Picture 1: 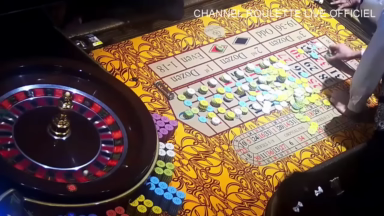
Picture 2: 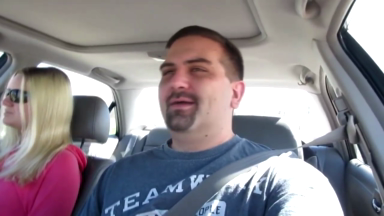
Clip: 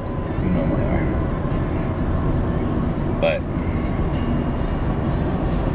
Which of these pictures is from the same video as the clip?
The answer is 2